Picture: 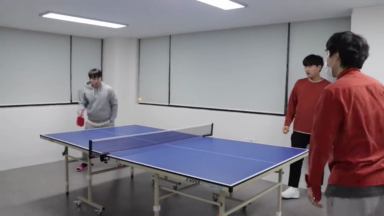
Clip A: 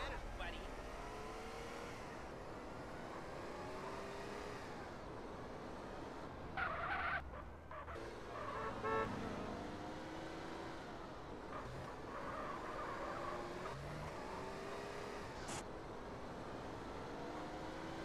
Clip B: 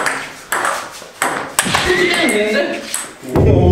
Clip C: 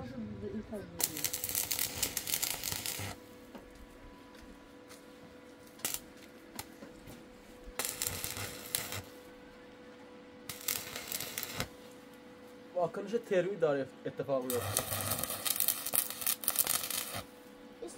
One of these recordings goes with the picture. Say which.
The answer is B